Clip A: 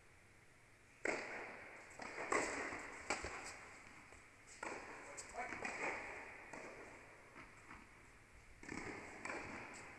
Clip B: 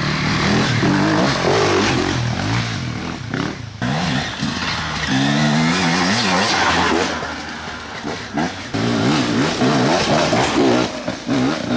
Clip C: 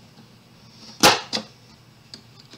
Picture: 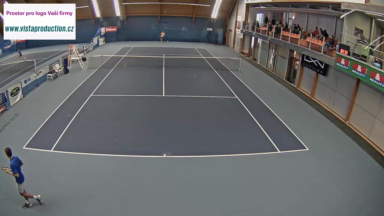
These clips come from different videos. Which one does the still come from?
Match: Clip A